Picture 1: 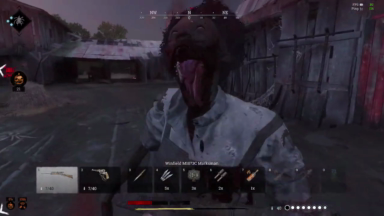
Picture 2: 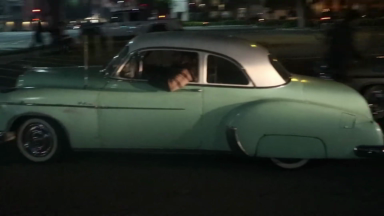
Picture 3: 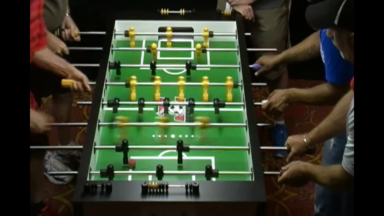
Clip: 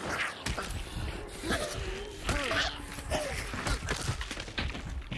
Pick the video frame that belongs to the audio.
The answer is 1